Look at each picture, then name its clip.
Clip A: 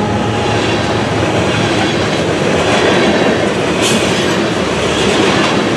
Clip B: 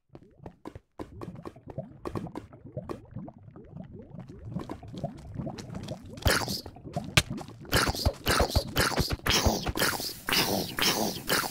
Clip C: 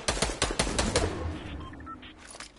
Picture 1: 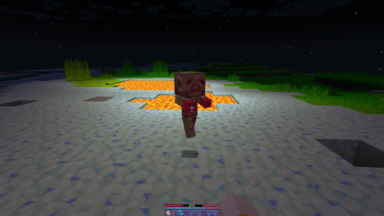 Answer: B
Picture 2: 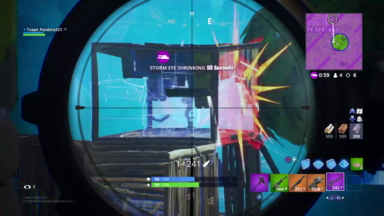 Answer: C